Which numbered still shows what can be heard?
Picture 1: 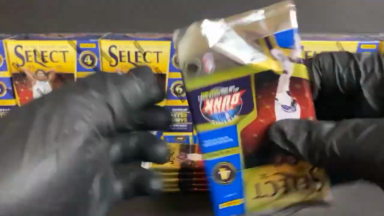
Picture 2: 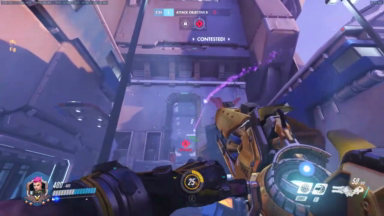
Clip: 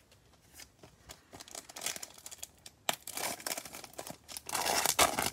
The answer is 1